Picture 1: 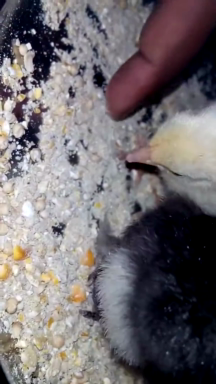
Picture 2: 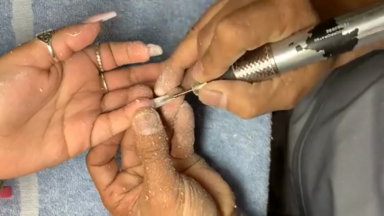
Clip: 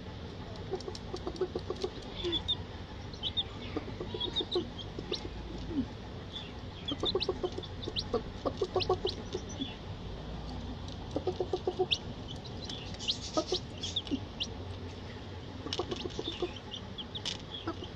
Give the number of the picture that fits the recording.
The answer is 1